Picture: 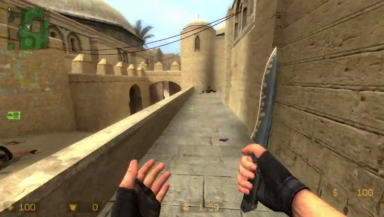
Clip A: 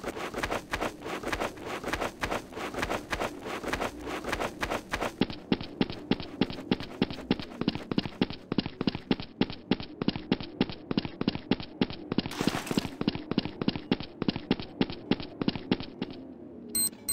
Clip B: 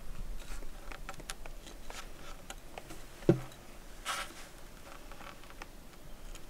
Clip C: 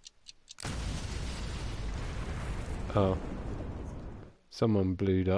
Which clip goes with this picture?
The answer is A